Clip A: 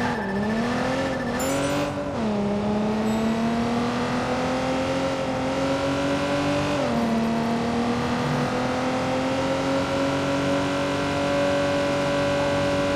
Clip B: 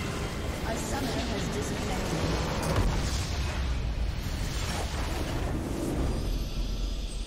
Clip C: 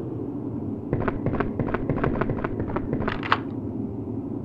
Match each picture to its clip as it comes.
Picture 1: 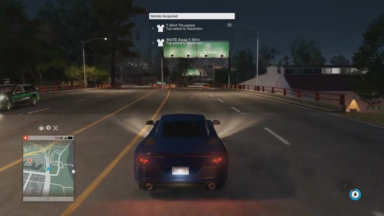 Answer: A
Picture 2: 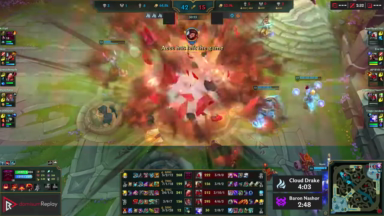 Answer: B